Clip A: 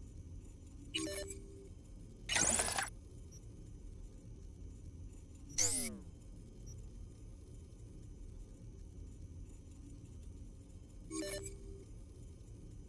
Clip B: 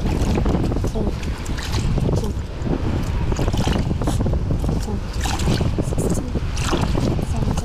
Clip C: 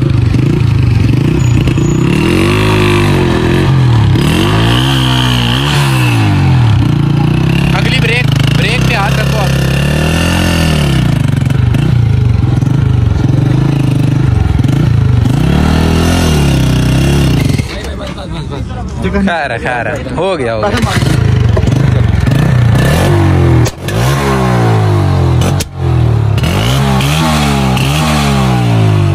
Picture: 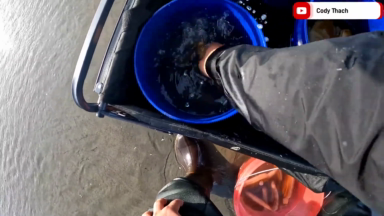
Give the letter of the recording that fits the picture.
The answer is B